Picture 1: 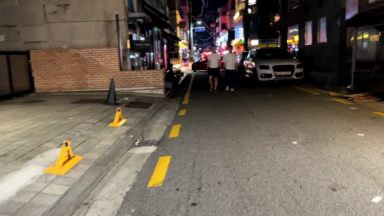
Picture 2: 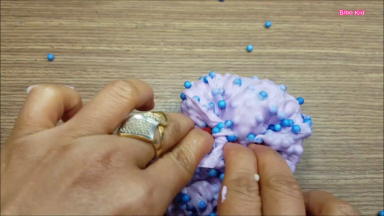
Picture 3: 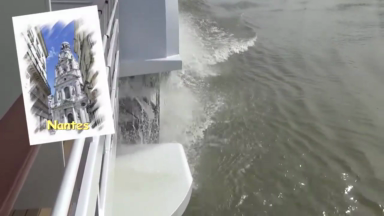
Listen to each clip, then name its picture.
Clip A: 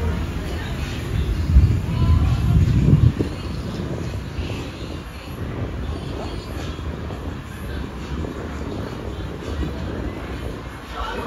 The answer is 1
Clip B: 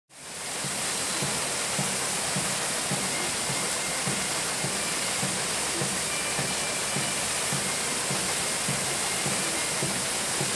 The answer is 3